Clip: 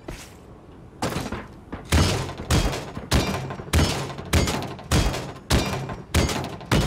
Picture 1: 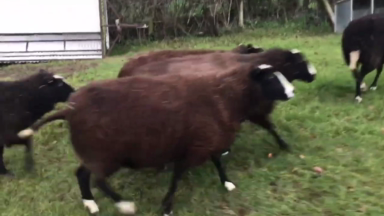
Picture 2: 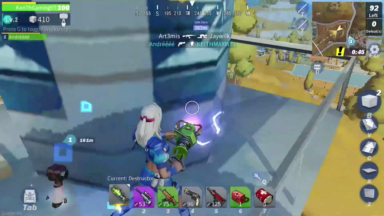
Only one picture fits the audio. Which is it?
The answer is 2